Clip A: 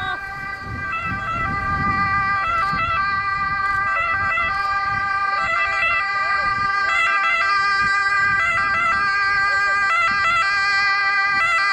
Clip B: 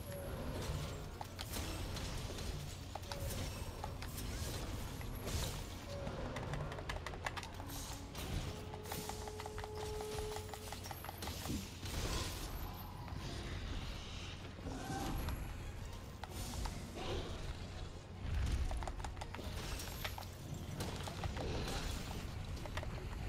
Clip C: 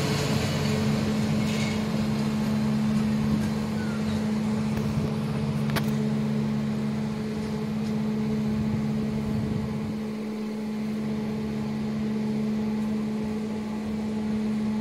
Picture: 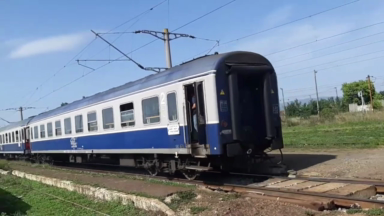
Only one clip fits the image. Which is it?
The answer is C